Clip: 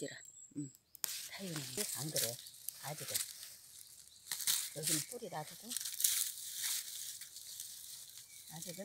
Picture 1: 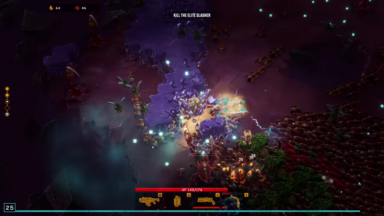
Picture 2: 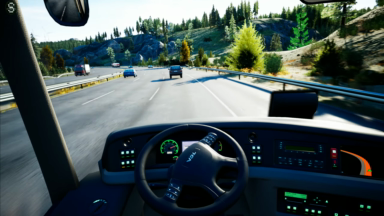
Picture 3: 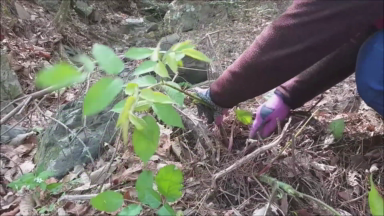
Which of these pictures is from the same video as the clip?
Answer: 3